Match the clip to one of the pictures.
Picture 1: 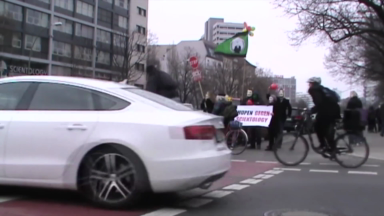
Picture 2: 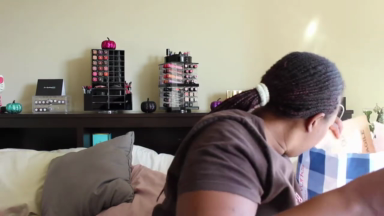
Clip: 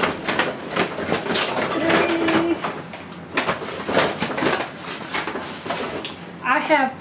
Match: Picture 2